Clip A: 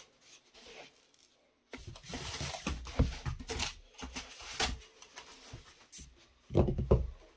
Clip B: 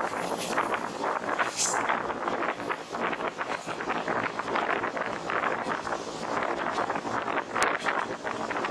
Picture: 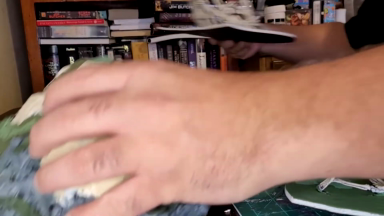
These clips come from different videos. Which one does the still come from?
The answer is A